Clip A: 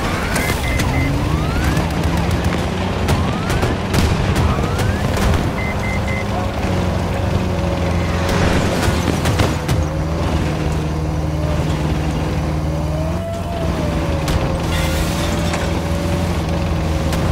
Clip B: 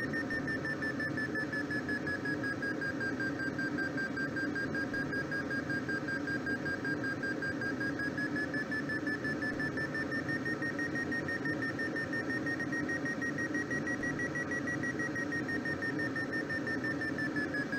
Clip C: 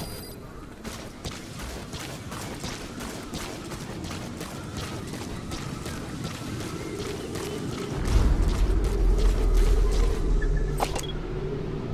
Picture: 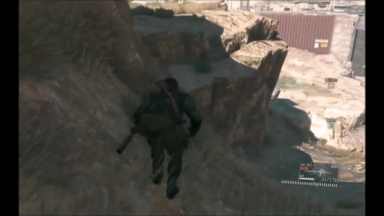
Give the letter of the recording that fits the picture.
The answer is C